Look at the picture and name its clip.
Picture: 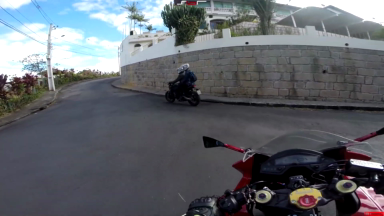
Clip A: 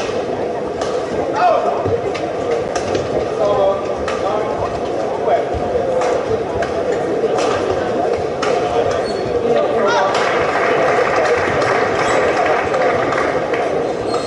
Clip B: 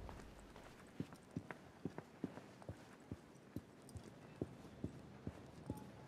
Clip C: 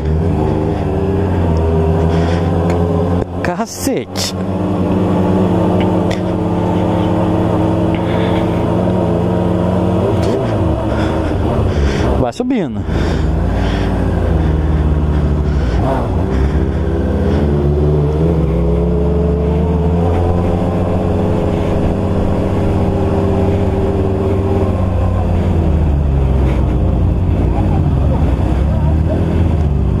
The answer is C